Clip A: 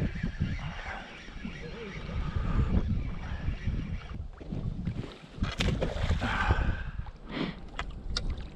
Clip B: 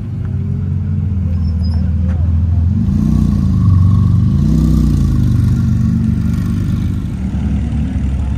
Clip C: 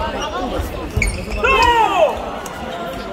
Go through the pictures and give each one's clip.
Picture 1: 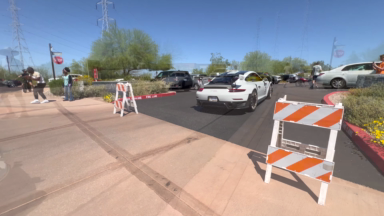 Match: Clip B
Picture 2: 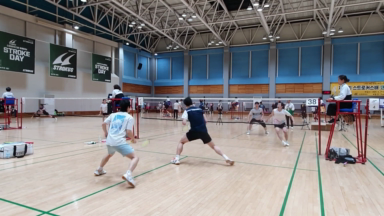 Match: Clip C